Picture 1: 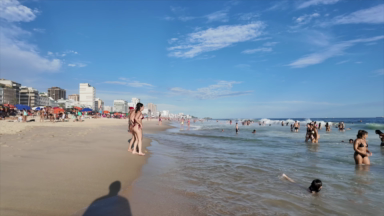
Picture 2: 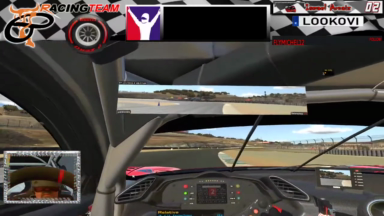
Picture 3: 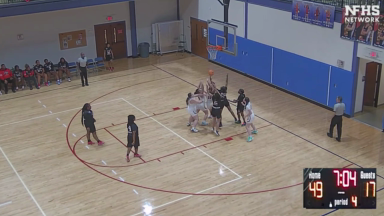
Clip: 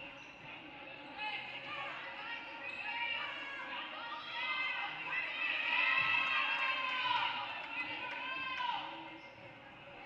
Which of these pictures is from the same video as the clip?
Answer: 3